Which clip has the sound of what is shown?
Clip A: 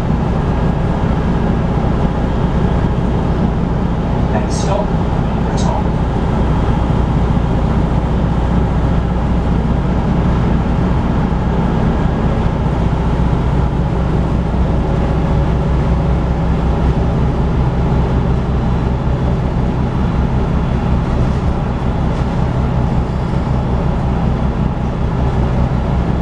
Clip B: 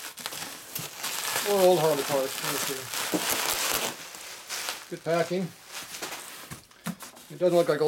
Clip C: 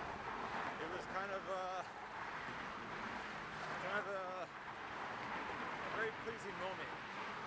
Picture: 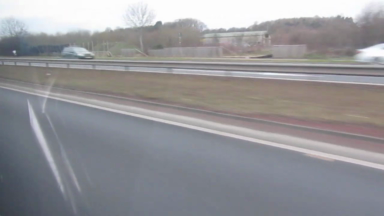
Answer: A